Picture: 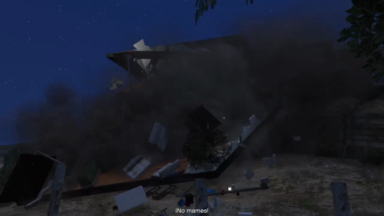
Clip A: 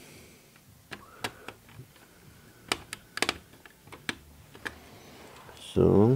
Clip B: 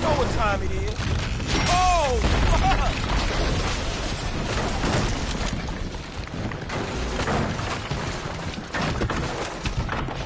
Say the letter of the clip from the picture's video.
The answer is B